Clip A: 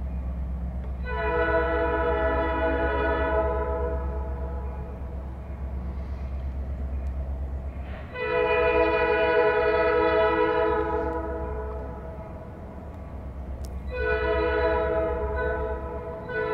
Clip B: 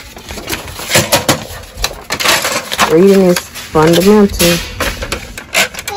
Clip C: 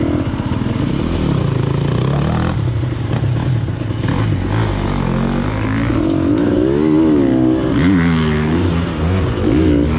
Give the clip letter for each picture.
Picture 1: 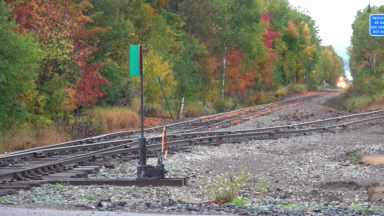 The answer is A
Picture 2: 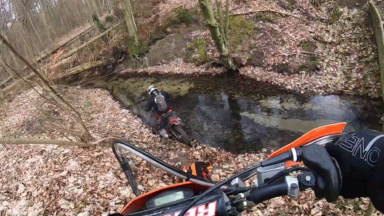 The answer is C